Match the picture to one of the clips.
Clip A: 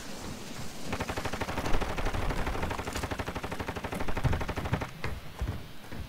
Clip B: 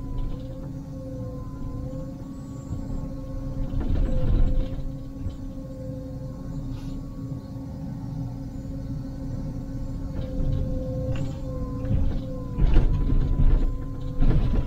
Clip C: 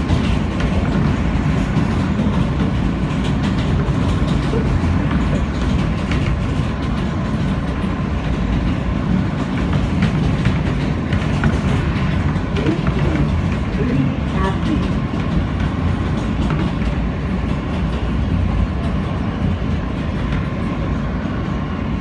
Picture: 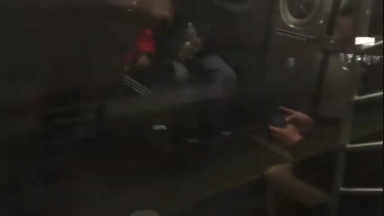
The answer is C